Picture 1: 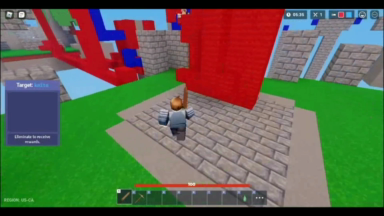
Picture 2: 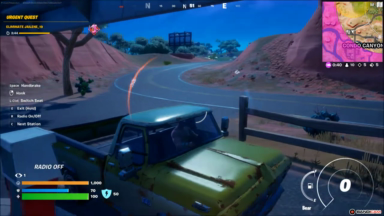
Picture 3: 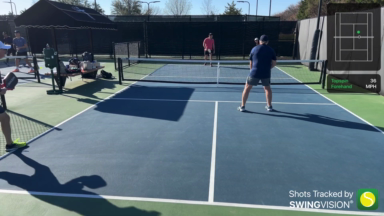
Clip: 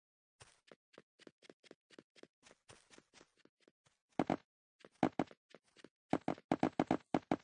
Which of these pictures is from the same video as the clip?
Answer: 1